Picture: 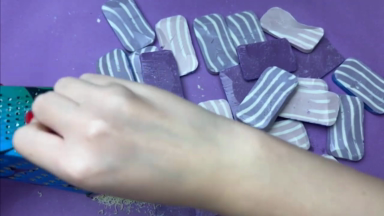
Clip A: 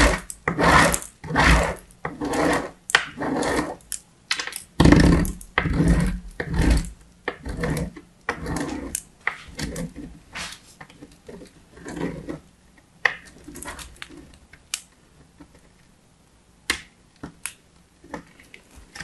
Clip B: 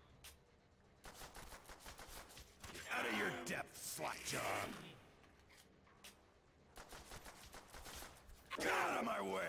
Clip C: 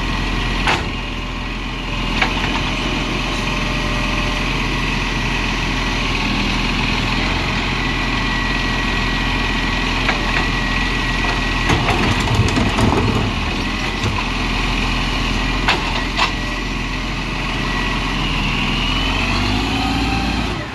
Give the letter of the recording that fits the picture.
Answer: A